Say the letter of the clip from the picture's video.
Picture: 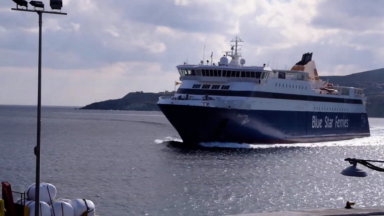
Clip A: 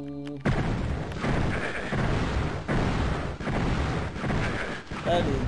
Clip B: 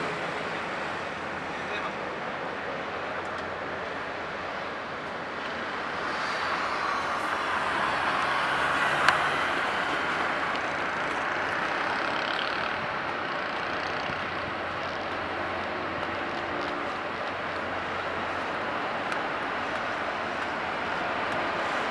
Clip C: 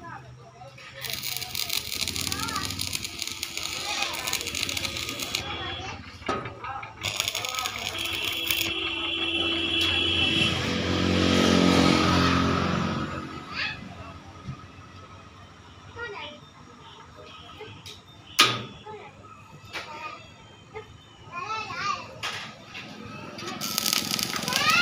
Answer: B